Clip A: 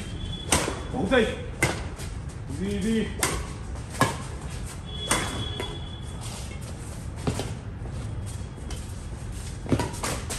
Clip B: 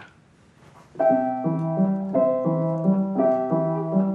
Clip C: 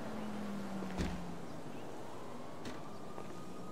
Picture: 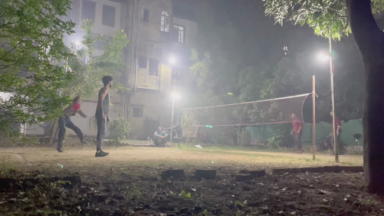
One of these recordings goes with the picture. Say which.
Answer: A